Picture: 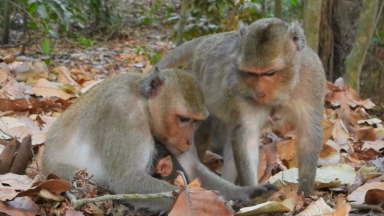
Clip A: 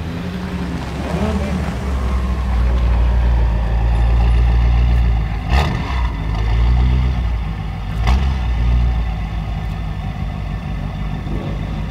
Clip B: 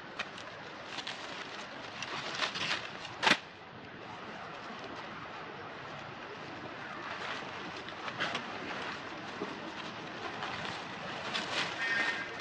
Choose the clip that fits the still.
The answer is B